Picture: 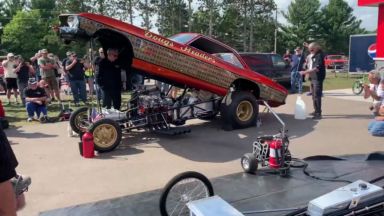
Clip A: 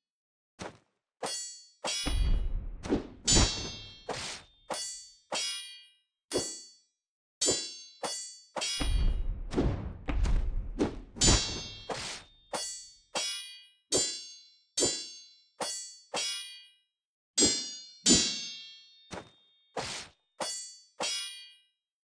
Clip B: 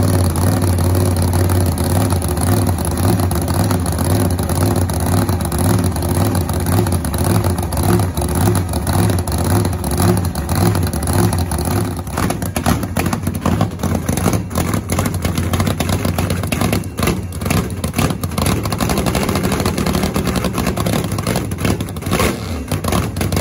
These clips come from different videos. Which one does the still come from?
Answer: B